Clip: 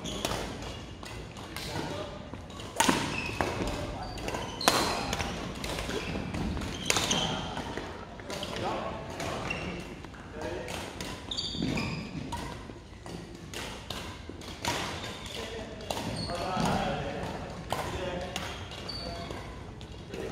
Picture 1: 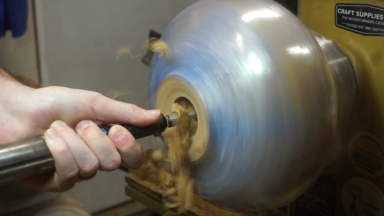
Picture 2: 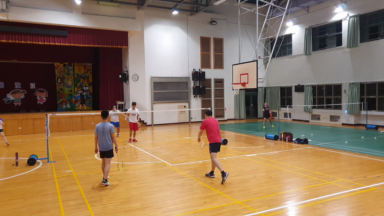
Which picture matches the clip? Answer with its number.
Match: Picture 2